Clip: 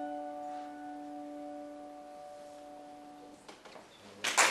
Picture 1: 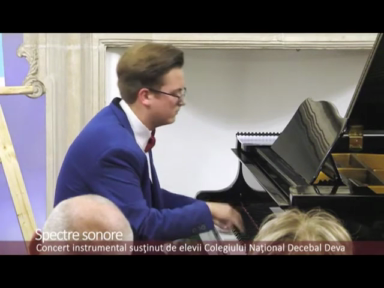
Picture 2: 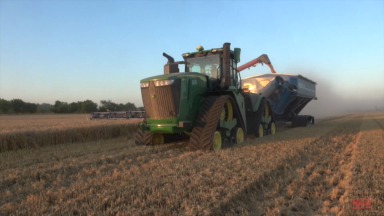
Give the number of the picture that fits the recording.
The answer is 1